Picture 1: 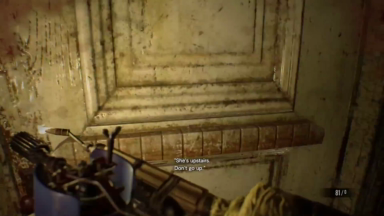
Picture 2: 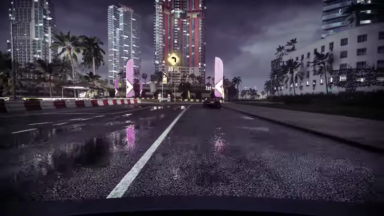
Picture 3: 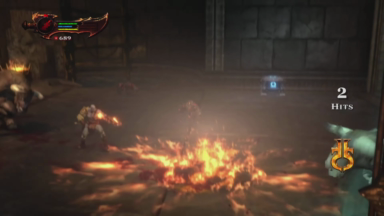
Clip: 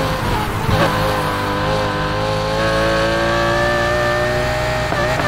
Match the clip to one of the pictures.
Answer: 2